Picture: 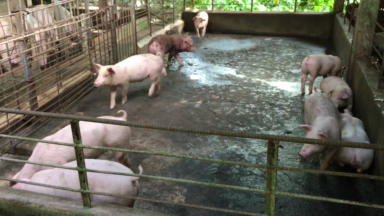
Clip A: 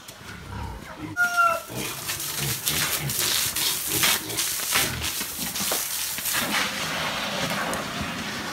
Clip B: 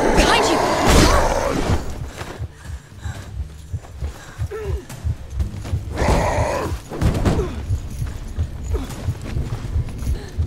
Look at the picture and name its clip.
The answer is A